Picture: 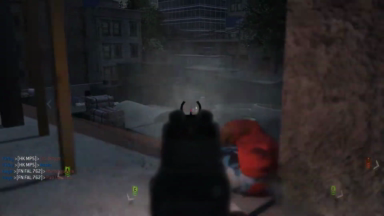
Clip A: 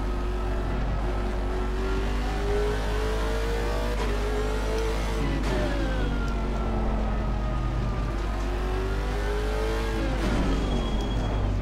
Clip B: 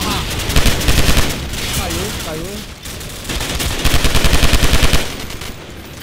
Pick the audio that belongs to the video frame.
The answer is B